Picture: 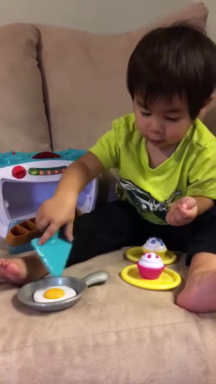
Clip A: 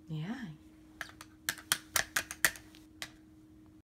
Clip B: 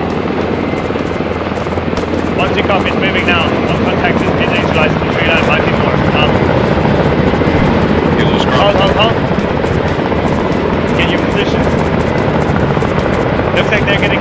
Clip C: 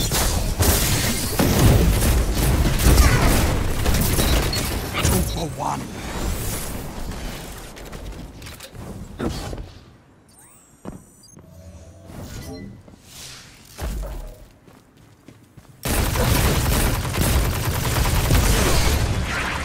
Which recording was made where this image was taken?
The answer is A